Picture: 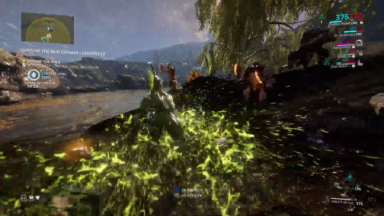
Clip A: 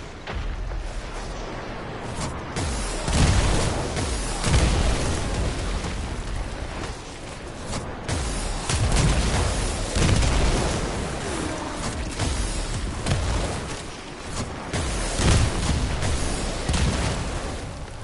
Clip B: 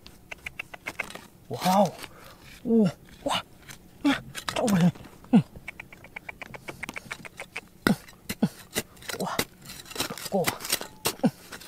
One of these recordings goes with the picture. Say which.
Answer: A